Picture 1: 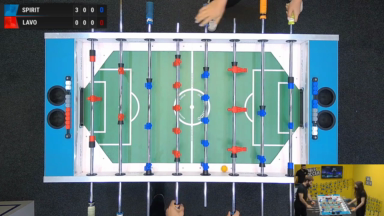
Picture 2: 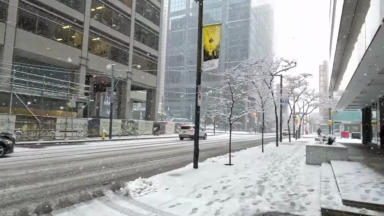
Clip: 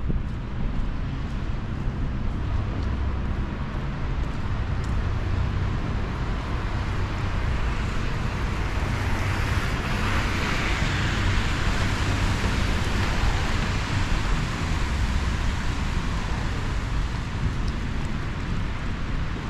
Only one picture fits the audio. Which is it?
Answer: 2